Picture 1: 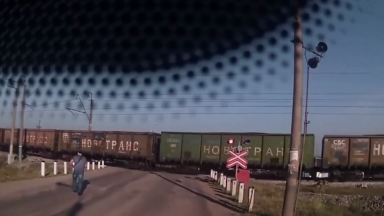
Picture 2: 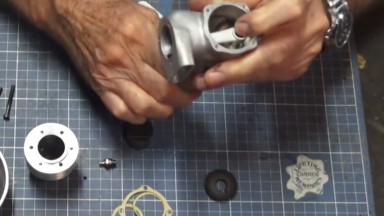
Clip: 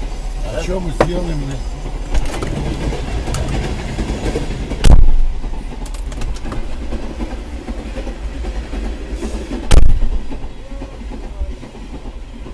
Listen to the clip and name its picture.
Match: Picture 1